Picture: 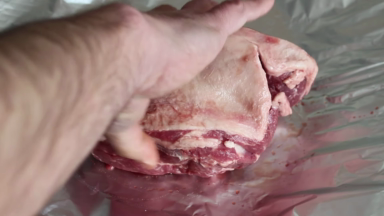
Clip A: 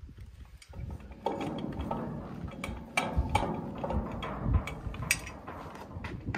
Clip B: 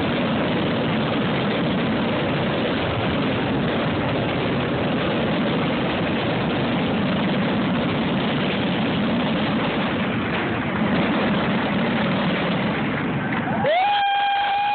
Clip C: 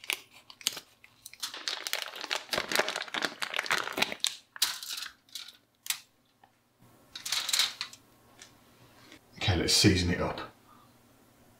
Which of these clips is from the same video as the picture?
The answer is C